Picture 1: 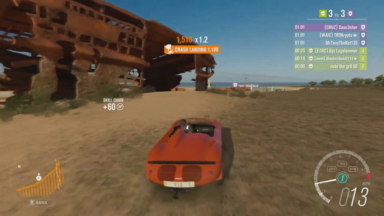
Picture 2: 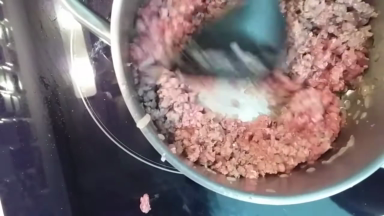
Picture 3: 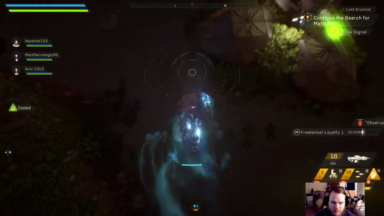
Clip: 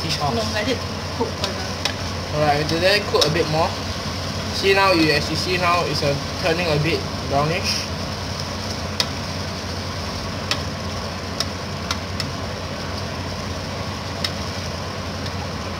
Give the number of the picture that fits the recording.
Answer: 2